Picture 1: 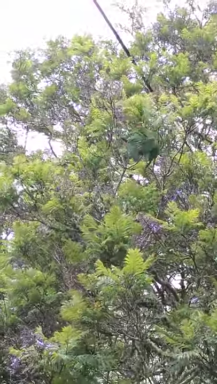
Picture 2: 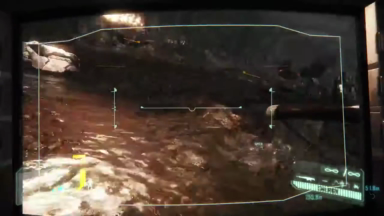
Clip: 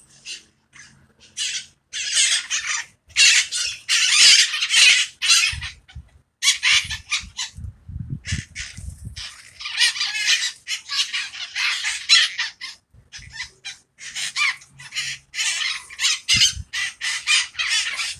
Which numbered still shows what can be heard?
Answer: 1